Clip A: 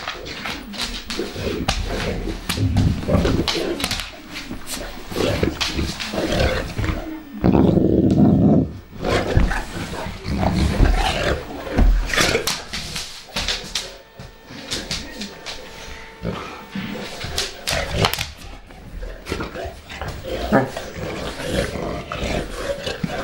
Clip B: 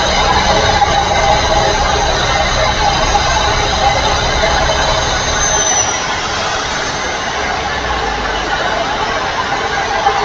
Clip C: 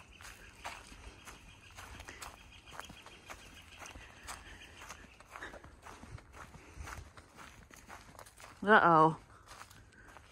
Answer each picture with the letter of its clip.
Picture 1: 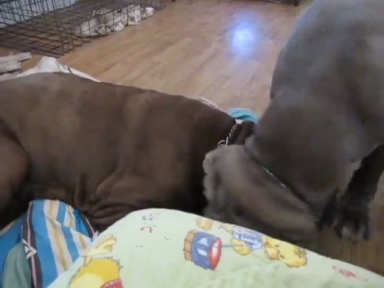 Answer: A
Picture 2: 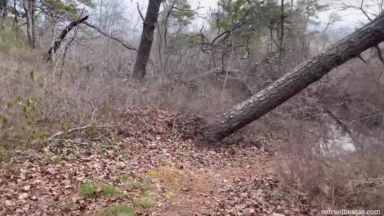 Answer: C